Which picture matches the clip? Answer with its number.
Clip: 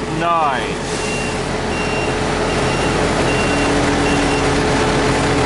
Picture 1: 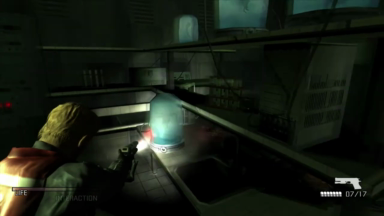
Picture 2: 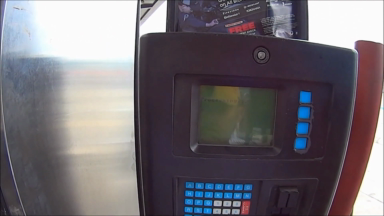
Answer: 2